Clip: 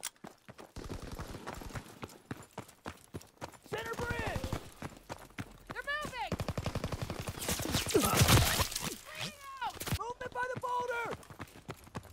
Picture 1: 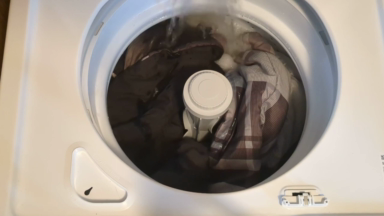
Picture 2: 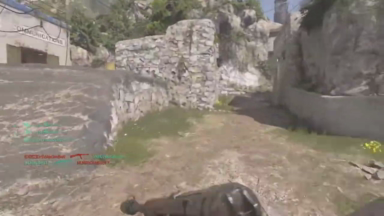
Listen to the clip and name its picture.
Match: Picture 2